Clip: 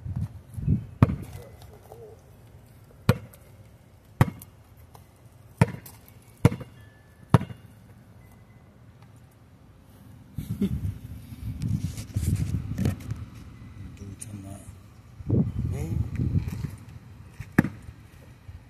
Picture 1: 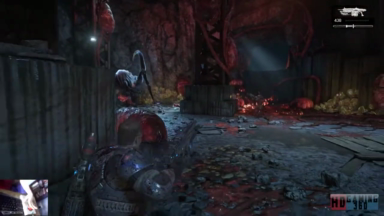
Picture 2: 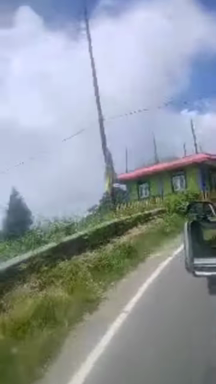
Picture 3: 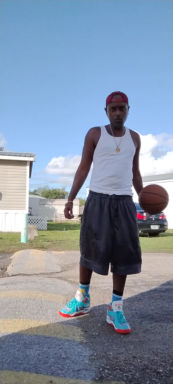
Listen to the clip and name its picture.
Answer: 3